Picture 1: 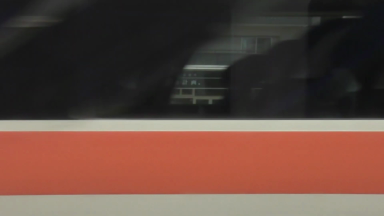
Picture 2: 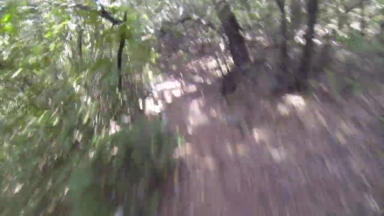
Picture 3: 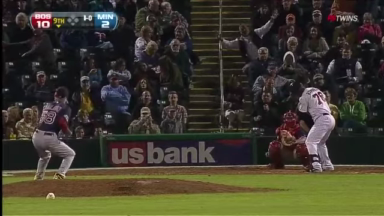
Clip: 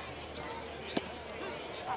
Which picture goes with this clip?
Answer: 3